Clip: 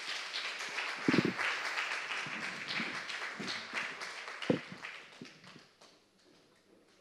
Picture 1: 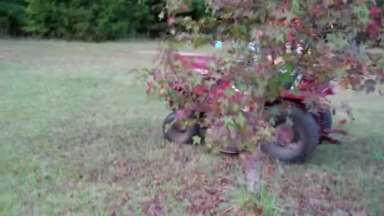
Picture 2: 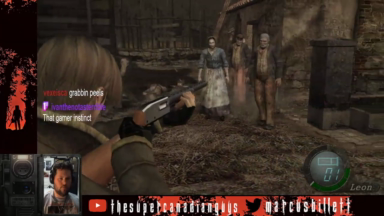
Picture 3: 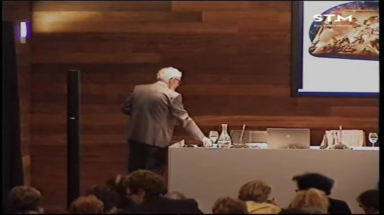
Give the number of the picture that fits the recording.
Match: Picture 3